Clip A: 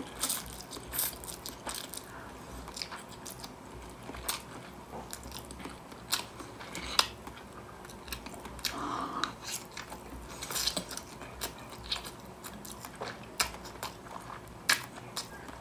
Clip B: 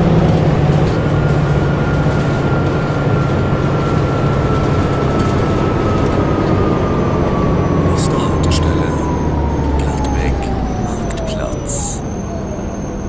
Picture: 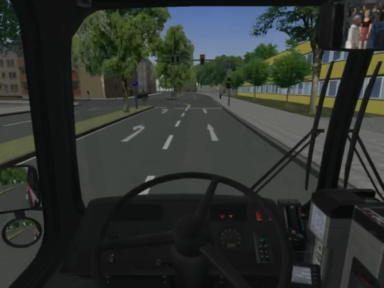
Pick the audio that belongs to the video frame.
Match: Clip B